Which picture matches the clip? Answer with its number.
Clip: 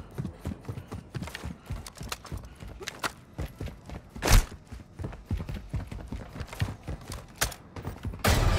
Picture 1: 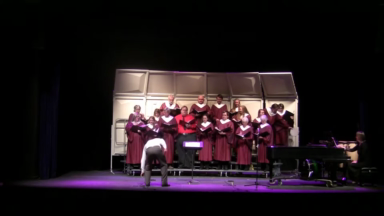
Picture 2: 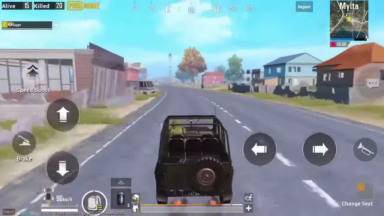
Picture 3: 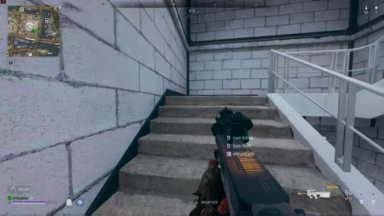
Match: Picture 3